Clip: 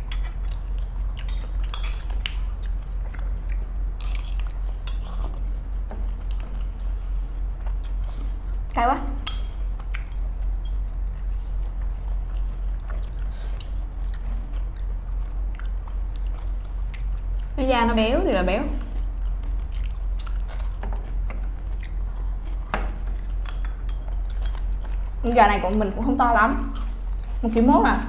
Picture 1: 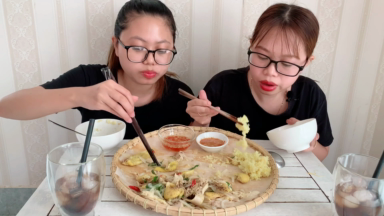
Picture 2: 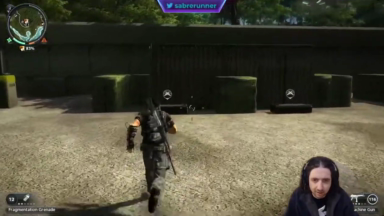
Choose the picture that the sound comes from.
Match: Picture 1